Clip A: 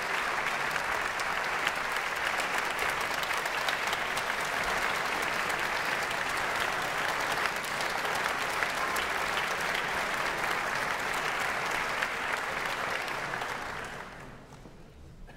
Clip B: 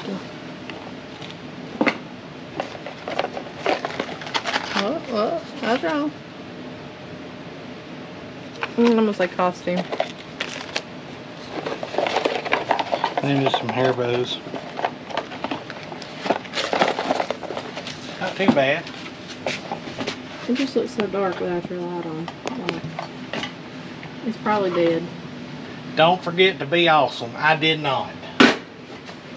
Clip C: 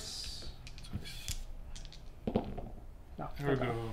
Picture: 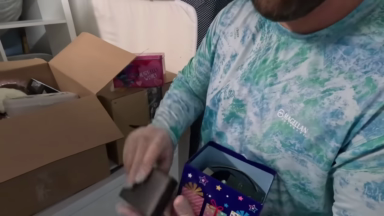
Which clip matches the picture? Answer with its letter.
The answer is B